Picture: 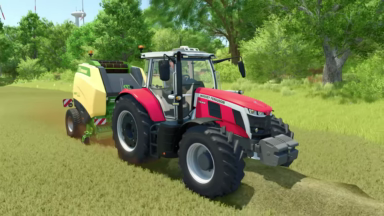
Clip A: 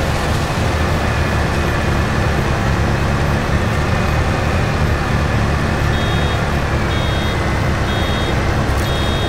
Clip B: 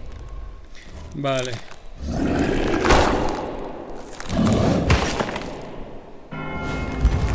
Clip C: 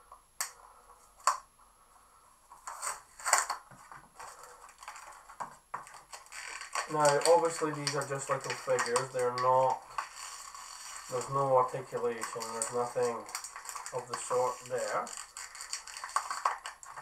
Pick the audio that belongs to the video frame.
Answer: A